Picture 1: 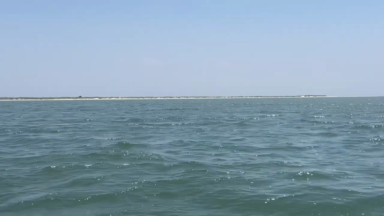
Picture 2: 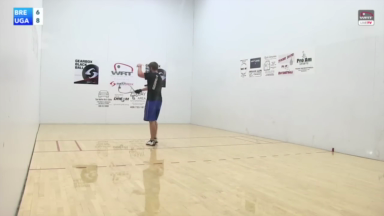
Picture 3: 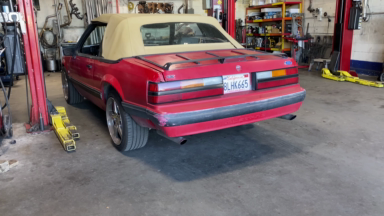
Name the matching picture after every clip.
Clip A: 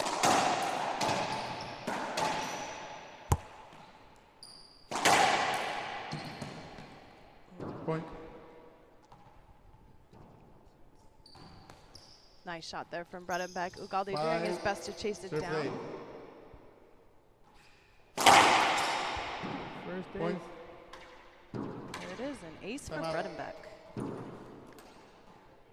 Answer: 2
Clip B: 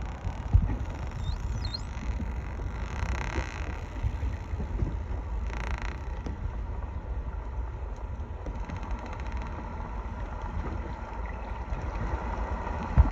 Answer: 1